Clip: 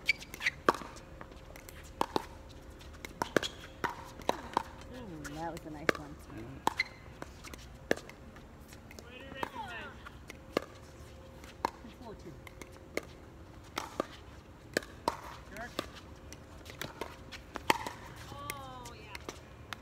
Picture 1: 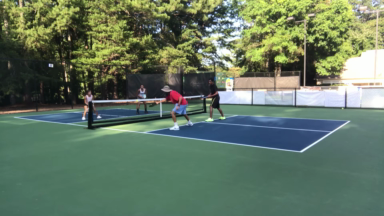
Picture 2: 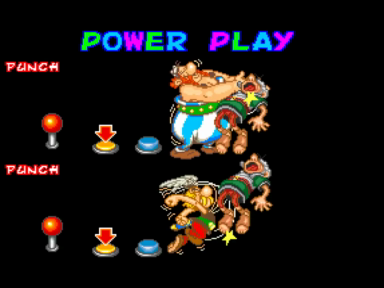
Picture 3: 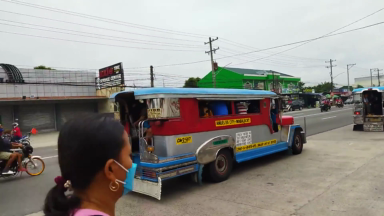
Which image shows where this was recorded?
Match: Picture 1